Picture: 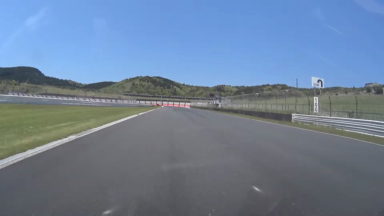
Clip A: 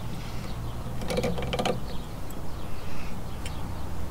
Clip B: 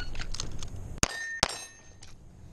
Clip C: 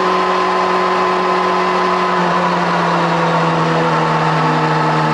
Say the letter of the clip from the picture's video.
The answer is C